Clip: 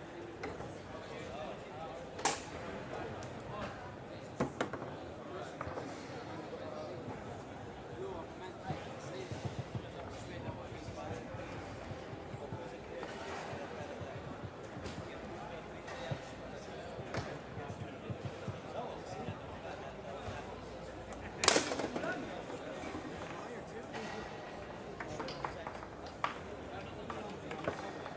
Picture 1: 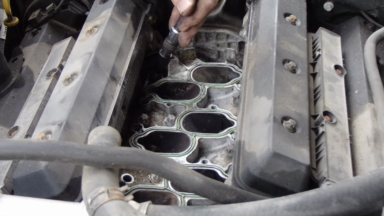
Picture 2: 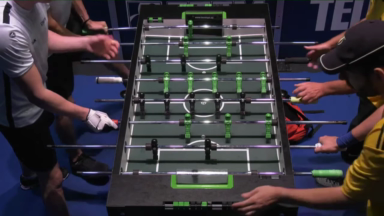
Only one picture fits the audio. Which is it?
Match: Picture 2